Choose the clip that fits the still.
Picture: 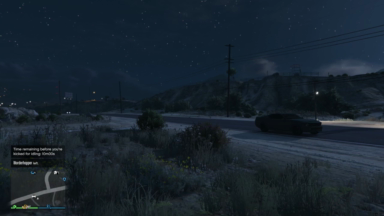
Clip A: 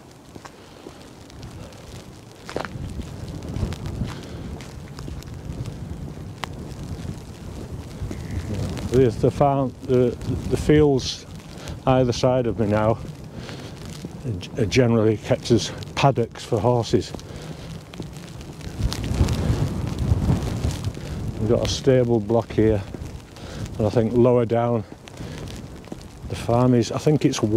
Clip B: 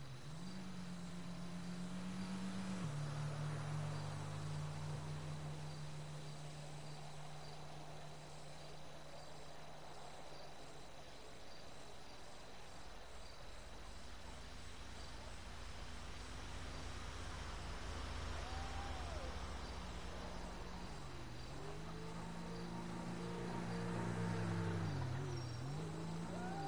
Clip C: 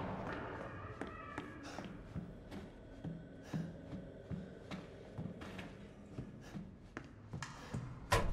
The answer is B